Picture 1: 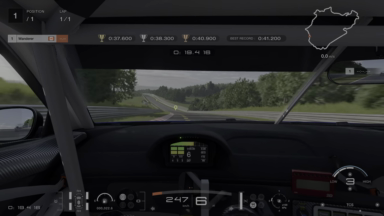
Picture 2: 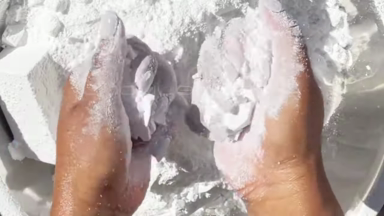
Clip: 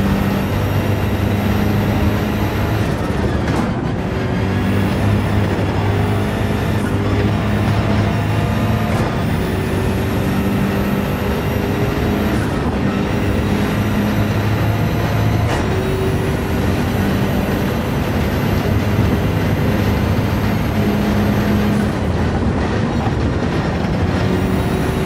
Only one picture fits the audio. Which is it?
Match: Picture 1